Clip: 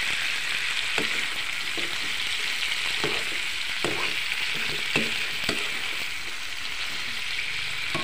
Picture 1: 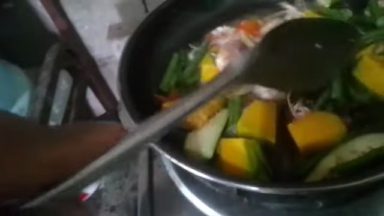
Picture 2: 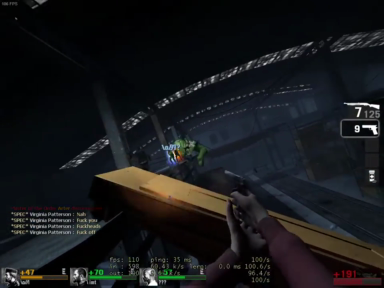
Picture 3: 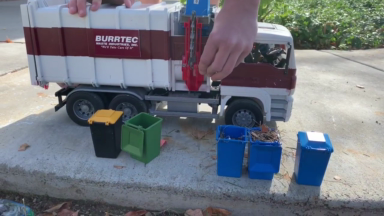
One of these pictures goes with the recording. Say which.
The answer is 1